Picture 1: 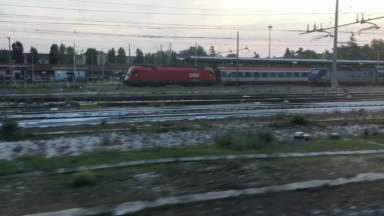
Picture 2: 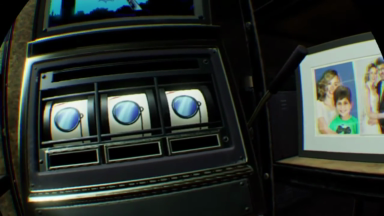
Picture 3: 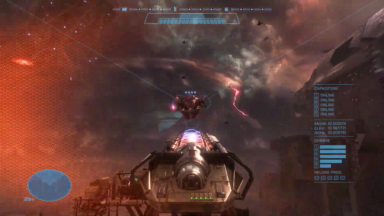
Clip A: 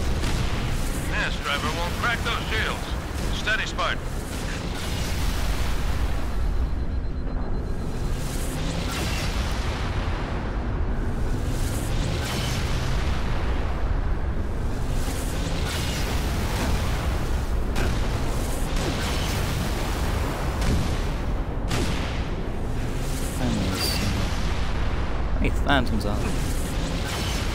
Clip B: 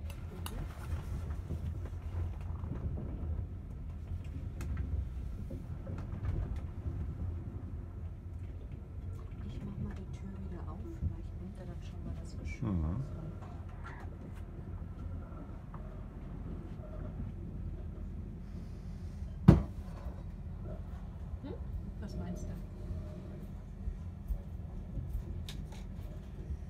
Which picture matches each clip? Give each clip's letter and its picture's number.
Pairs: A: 3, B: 1